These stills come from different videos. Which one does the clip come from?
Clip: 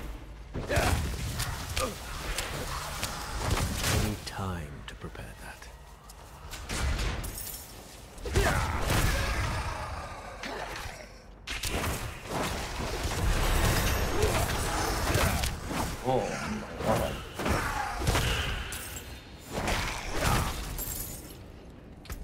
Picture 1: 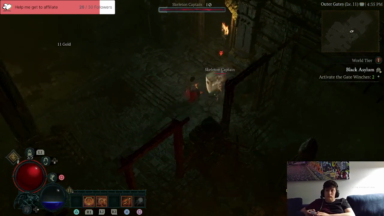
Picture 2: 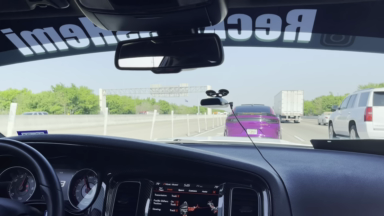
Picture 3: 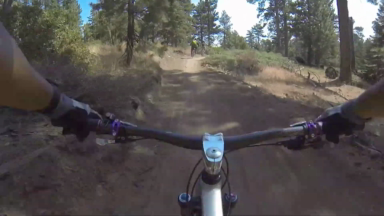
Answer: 1